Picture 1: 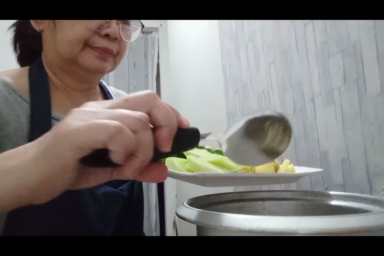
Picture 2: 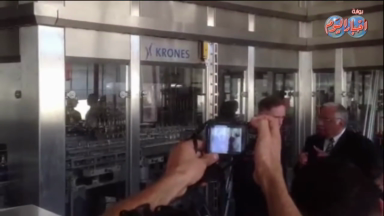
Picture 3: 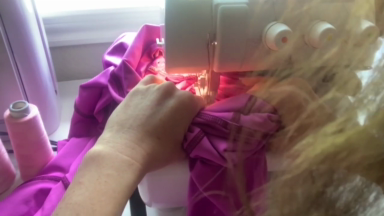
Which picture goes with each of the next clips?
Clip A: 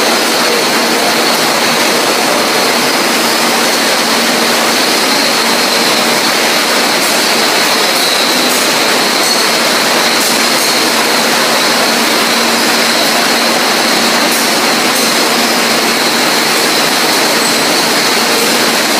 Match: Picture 2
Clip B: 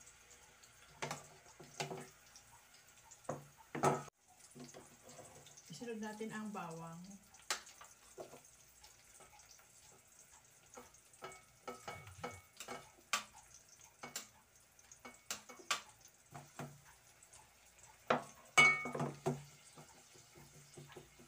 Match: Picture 1